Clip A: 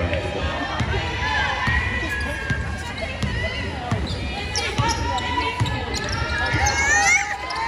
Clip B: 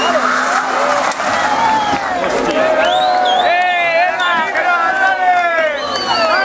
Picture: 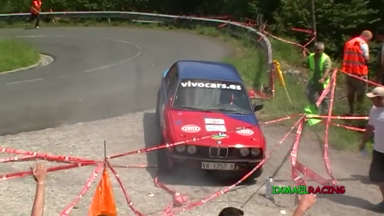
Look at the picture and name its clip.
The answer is B